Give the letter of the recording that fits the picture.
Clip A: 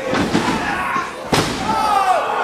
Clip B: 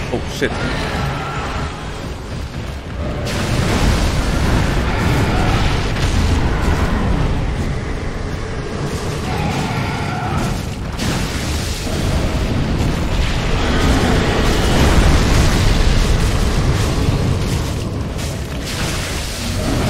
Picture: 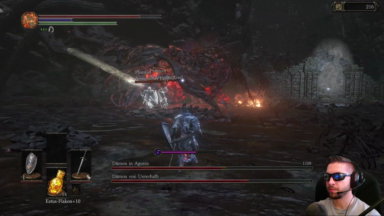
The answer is B